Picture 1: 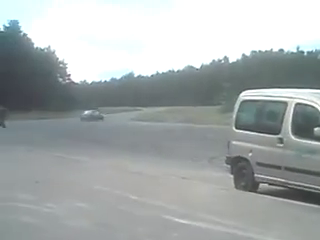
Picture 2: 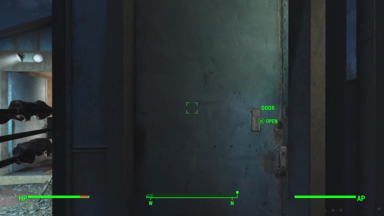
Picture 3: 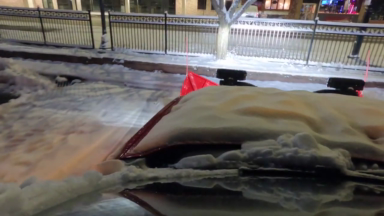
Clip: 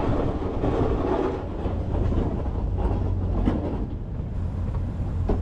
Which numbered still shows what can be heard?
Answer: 3